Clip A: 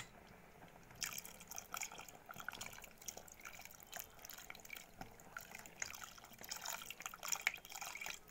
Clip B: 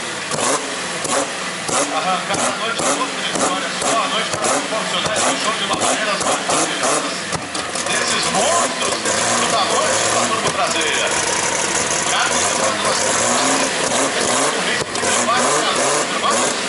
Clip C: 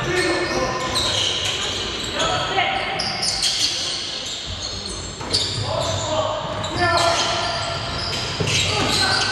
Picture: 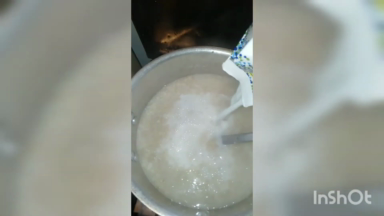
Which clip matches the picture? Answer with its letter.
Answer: A